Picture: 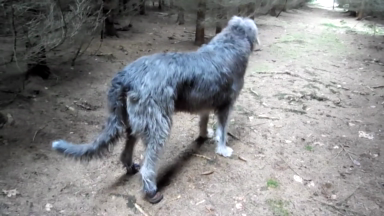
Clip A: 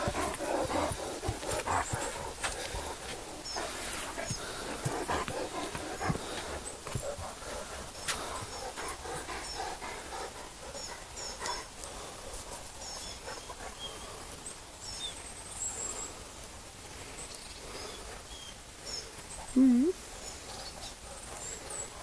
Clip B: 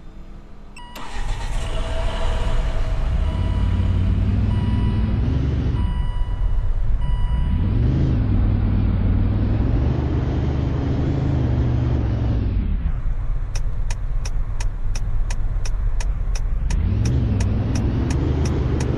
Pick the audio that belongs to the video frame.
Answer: A